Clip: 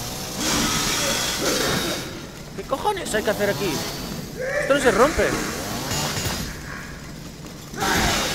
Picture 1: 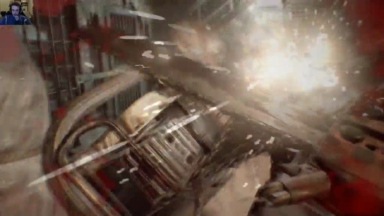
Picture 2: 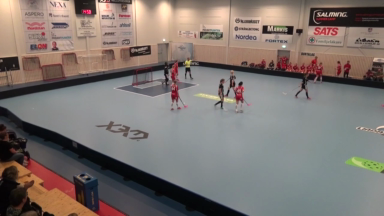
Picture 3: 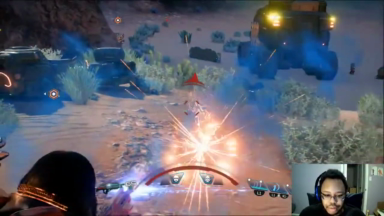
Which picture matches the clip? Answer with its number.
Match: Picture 1